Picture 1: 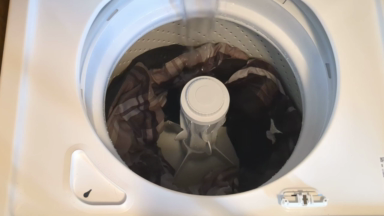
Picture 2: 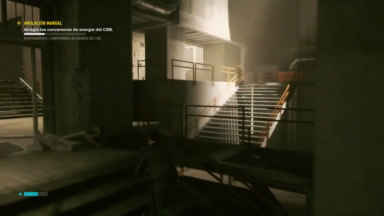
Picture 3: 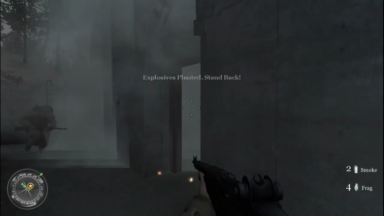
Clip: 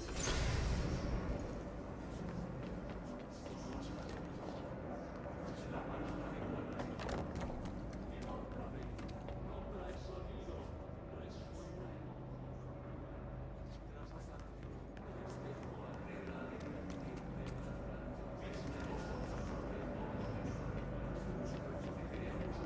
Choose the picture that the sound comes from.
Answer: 2